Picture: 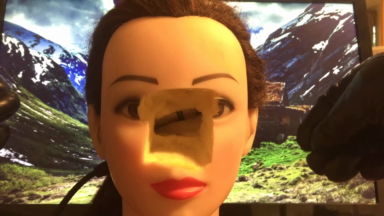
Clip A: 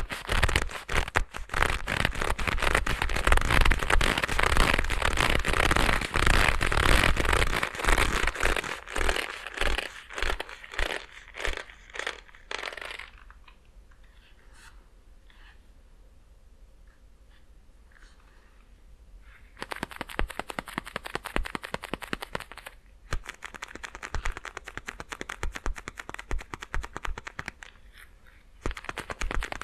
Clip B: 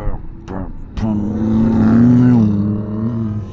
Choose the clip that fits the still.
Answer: A